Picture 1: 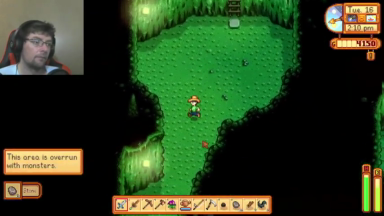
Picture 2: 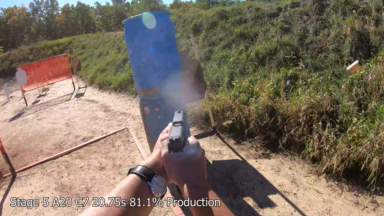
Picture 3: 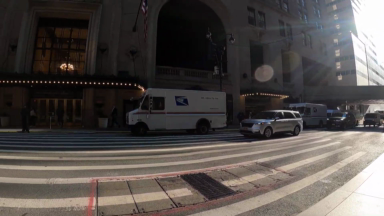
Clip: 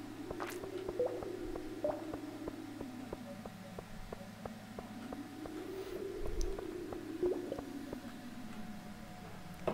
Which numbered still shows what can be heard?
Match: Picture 1